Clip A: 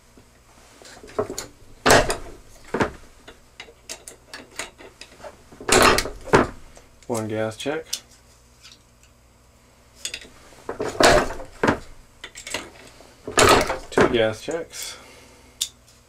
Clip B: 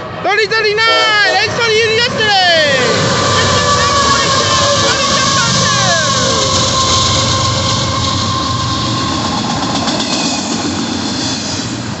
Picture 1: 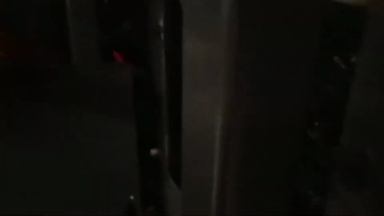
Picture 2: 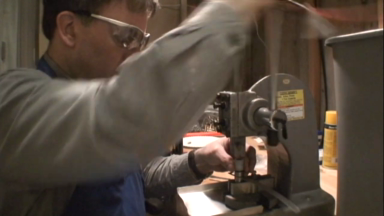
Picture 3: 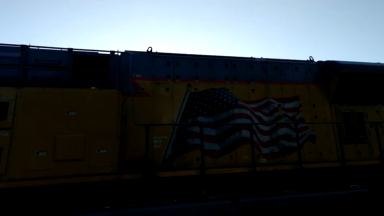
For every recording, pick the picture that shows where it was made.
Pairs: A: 2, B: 3